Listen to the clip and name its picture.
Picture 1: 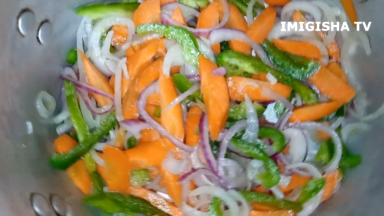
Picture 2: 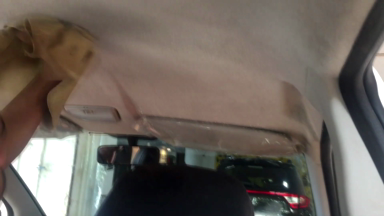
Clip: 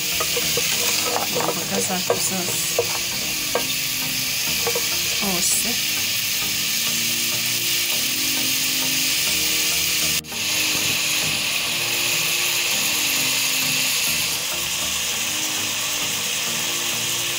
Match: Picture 1